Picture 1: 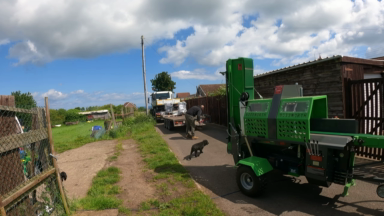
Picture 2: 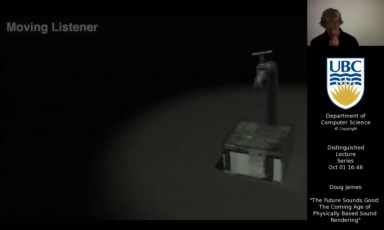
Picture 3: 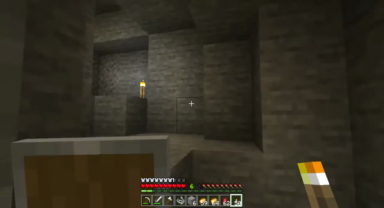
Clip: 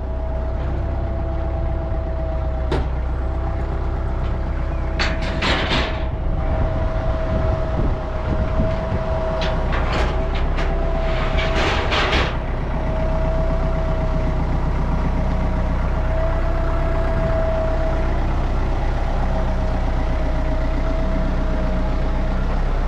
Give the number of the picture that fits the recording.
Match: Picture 1